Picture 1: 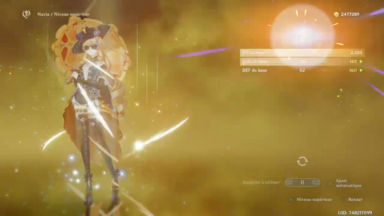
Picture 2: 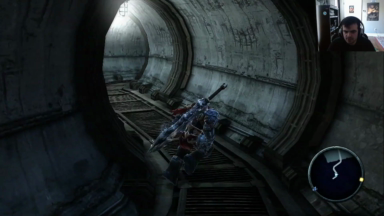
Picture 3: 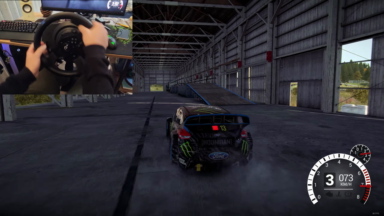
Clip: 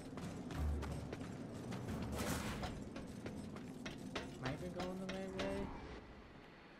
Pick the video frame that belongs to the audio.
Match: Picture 2